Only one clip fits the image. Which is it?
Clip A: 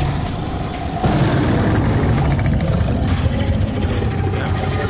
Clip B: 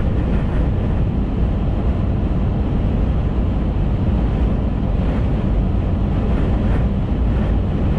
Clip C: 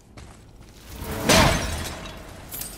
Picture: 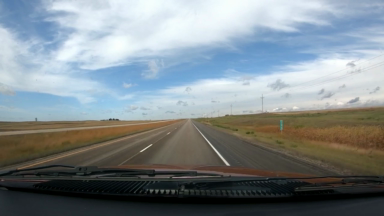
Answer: B